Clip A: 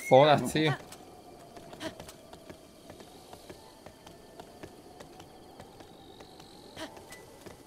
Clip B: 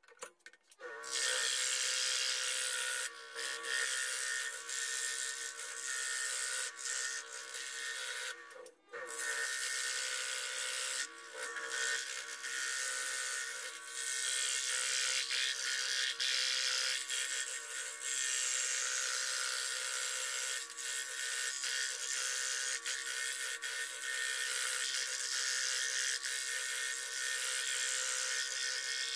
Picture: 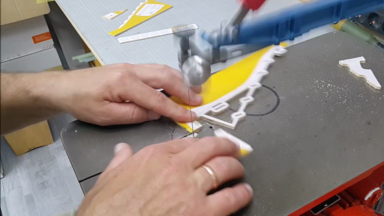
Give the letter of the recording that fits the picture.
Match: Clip B